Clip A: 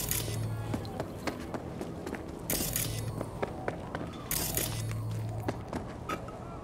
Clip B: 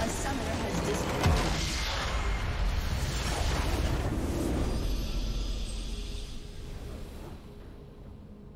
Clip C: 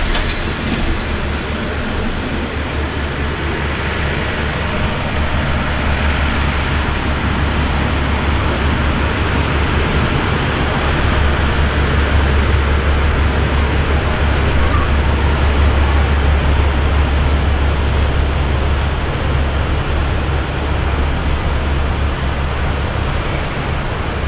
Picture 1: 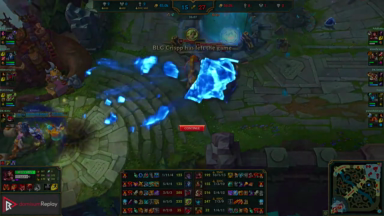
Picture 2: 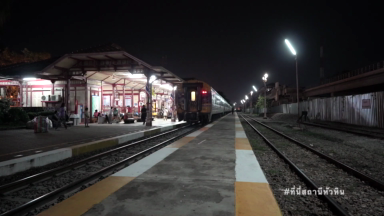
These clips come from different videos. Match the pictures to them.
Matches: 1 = B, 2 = C